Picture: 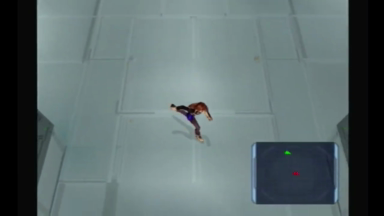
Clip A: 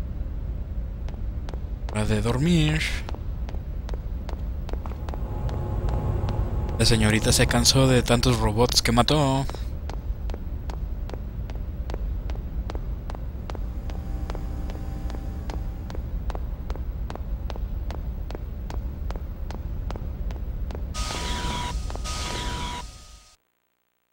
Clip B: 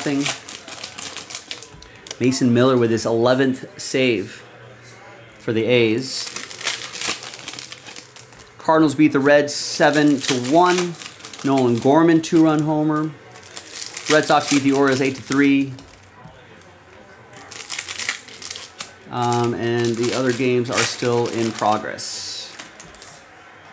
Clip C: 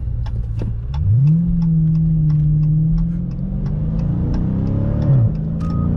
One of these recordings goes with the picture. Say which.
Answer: A